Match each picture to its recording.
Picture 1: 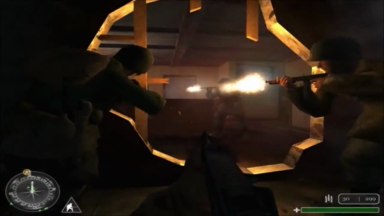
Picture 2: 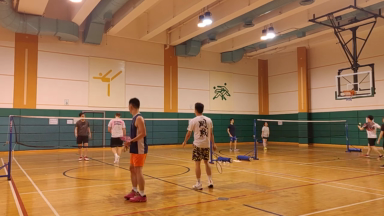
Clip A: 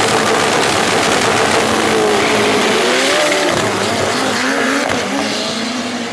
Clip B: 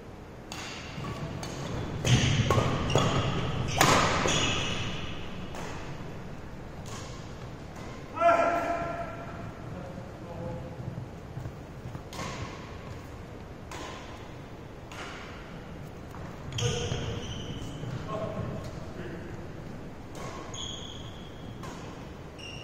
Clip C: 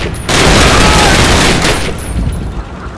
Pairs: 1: C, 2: B